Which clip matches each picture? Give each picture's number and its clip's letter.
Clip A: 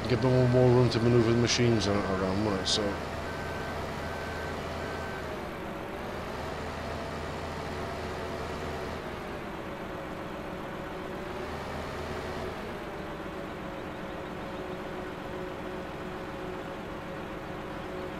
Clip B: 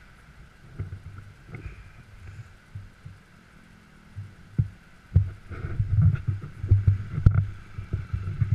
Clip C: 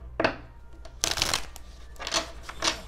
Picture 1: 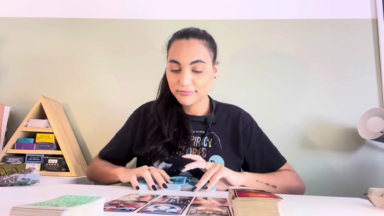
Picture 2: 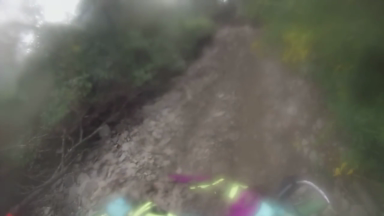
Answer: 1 C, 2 B